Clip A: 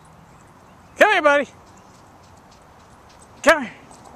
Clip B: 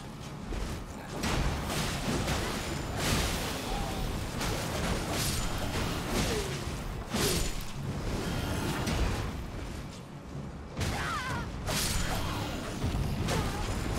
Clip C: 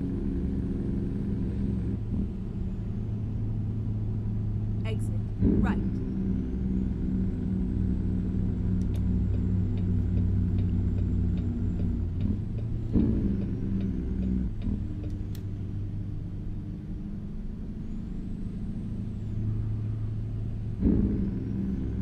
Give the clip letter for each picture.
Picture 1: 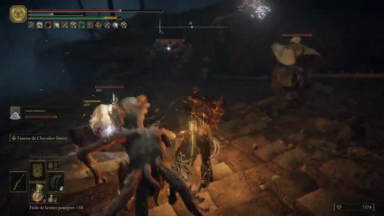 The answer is B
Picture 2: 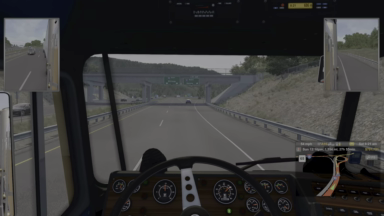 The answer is C